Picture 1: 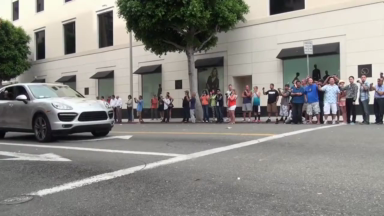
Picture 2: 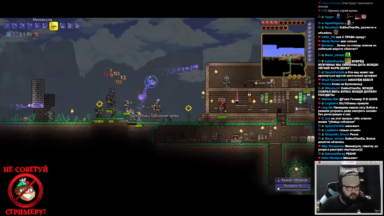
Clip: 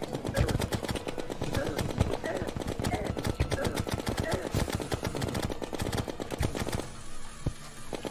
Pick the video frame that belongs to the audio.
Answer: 2